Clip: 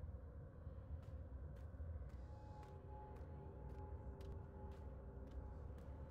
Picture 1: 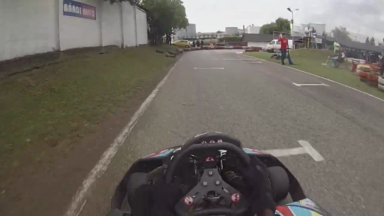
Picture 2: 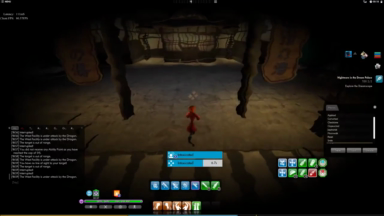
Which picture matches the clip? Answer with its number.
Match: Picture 2